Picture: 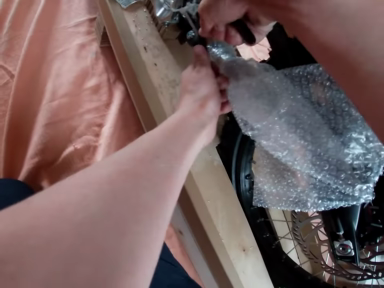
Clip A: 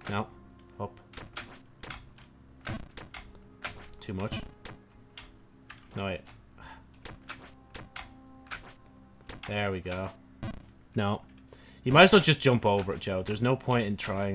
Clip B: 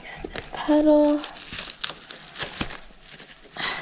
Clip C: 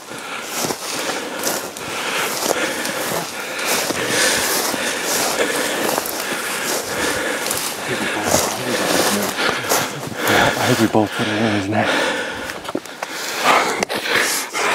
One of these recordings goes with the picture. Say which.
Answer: B